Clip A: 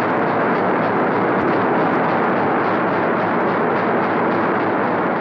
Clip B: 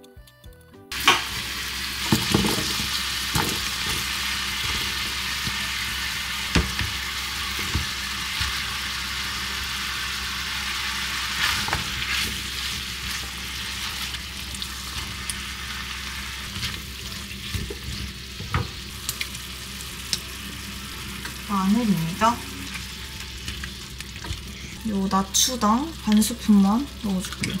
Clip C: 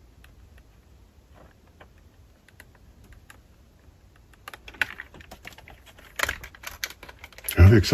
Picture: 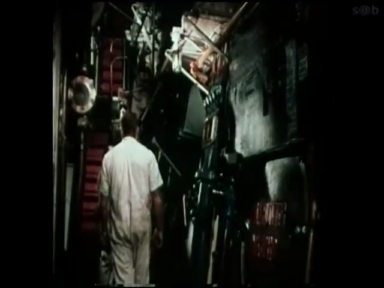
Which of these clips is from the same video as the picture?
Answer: A